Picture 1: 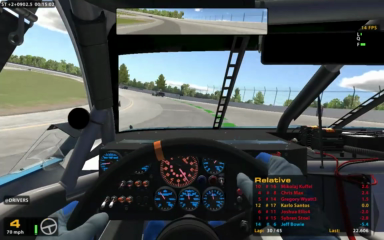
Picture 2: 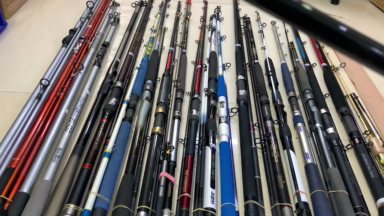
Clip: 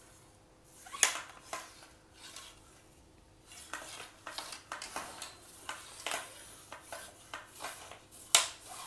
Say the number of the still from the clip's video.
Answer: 2